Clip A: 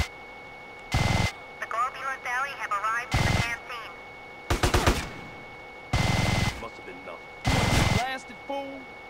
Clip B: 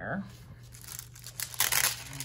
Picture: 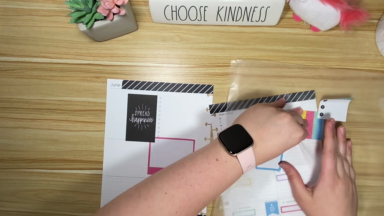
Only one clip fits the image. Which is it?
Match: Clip B